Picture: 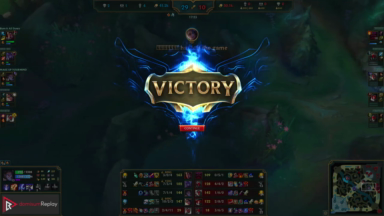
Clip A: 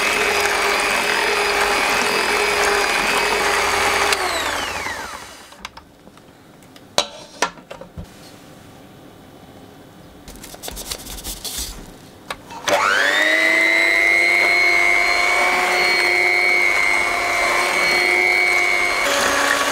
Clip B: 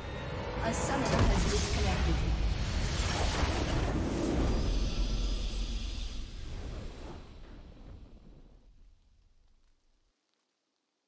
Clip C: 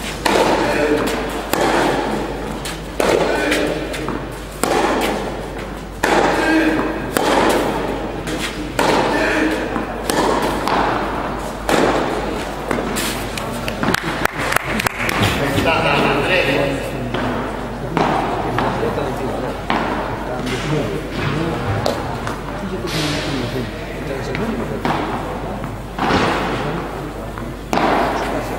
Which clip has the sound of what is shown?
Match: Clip B